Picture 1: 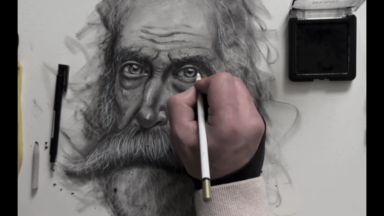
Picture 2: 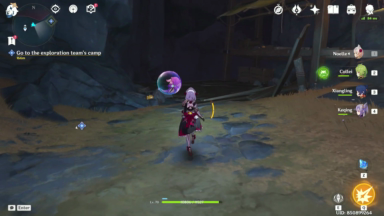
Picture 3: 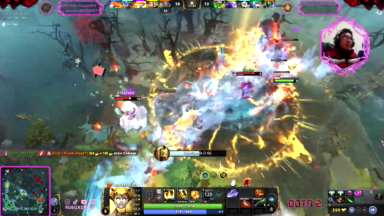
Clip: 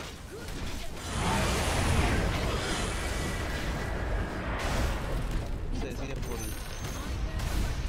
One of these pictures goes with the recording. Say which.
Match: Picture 3